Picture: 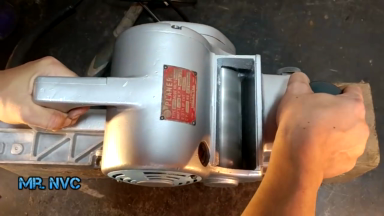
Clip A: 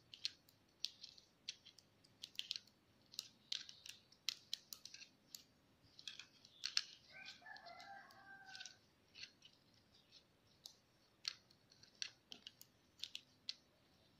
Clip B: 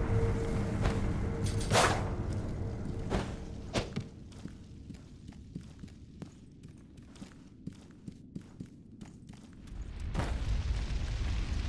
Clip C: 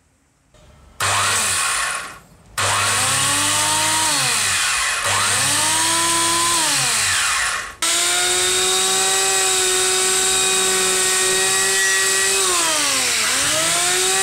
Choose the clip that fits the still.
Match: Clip C